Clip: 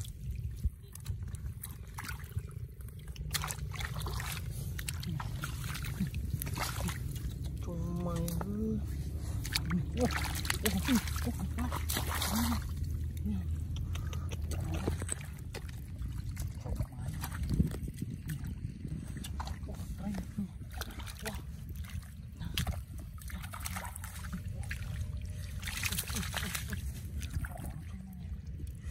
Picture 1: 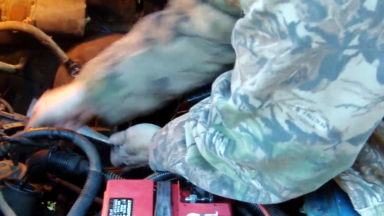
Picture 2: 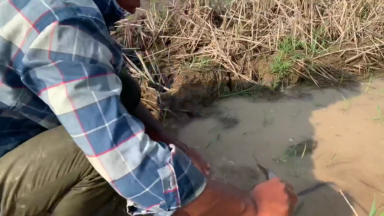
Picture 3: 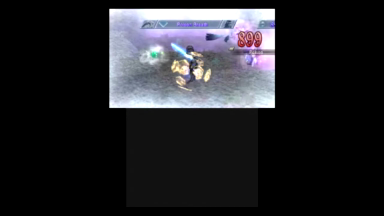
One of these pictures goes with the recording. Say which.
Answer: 2